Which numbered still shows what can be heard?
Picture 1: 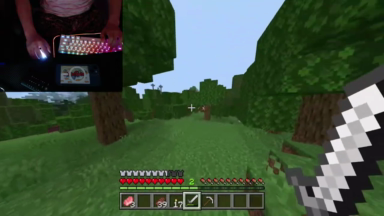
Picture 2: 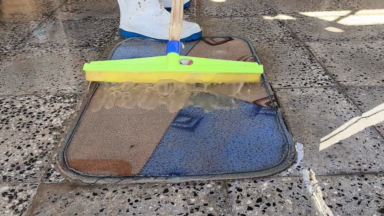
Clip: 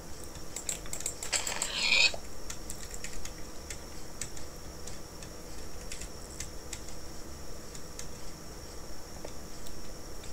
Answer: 1